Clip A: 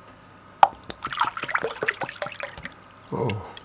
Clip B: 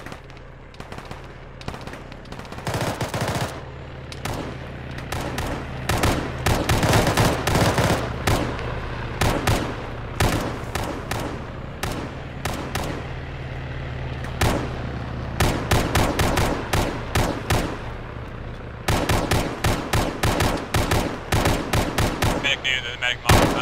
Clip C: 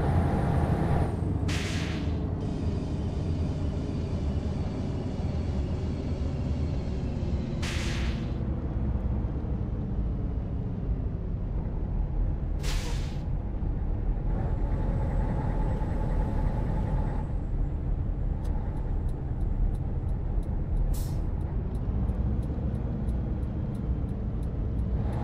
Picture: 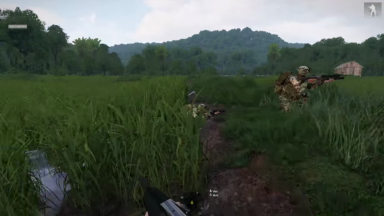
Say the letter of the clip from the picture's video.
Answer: B